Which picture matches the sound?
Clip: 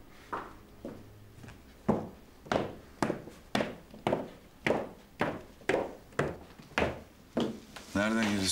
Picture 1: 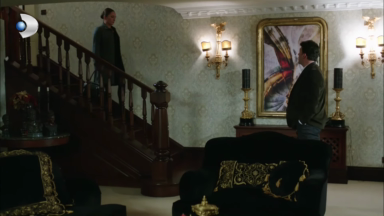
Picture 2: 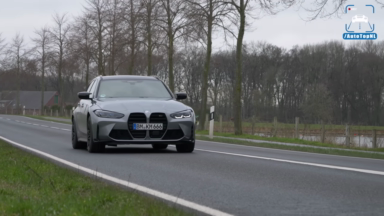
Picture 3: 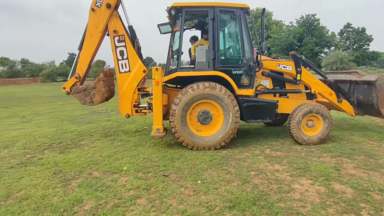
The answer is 1